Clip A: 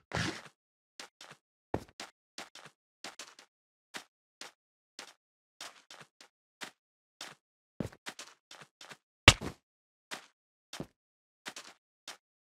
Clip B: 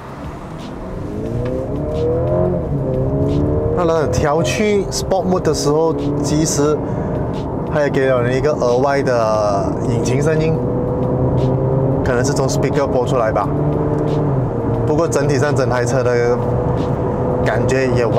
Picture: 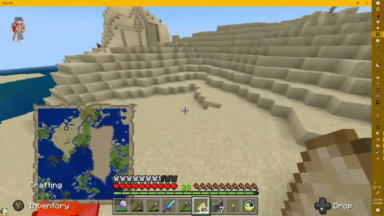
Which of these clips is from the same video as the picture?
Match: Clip A